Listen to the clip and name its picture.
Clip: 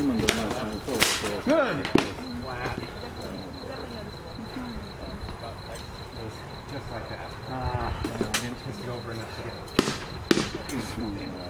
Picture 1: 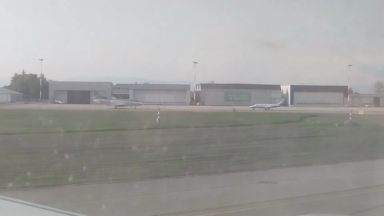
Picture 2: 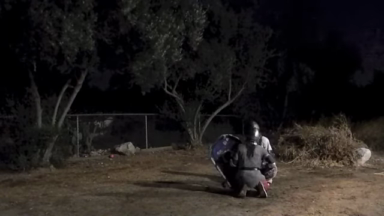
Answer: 2